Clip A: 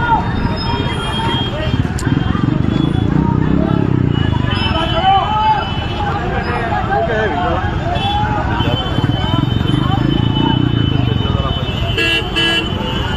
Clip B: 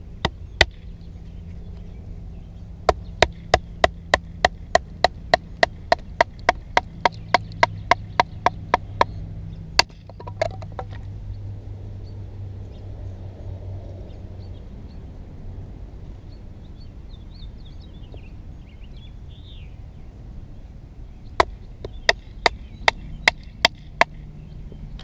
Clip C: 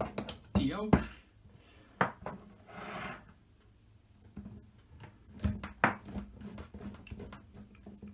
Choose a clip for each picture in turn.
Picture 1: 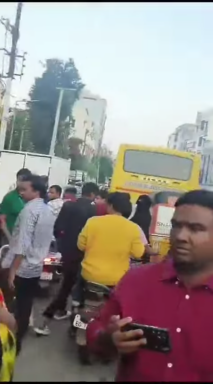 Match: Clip A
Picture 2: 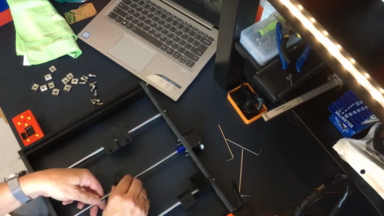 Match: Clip C